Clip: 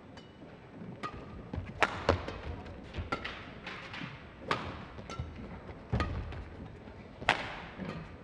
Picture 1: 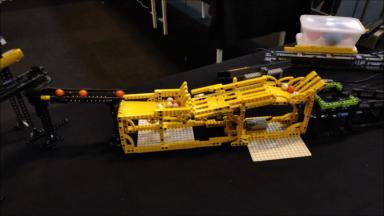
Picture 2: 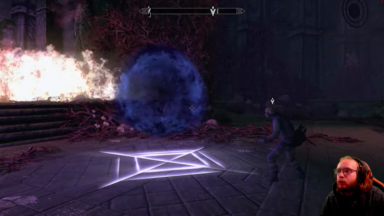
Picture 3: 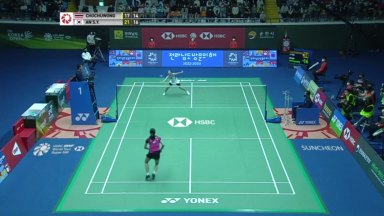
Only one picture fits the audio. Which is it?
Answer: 3